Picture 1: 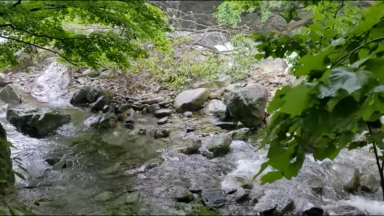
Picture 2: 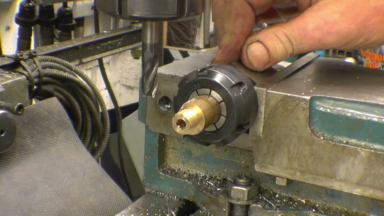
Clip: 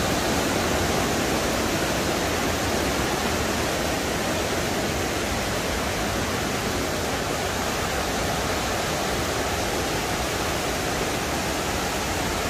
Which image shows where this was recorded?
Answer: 1